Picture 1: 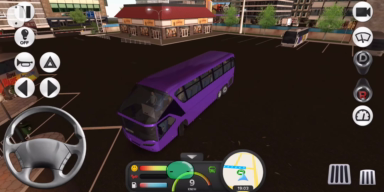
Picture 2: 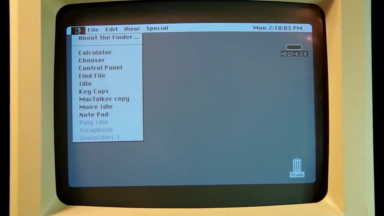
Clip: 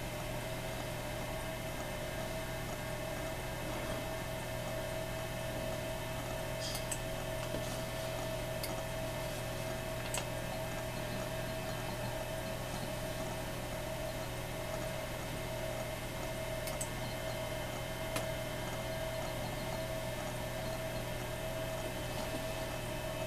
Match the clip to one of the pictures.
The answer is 2